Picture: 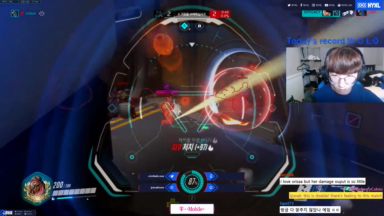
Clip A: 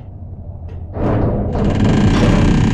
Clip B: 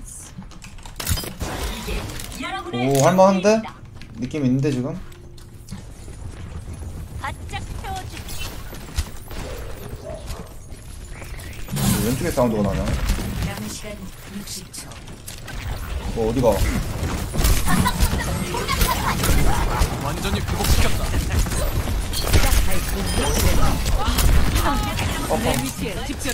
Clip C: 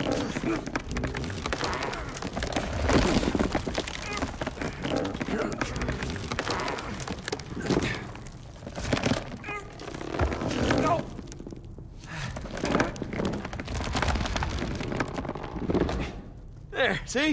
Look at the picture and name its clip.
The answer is B